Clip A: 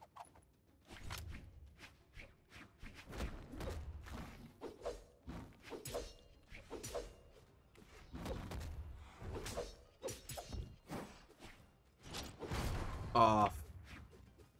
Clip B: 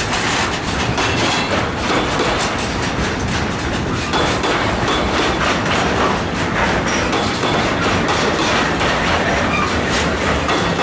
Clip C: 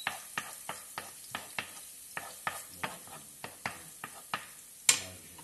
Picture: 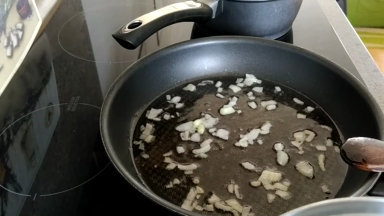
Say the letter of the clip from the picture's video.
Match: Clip C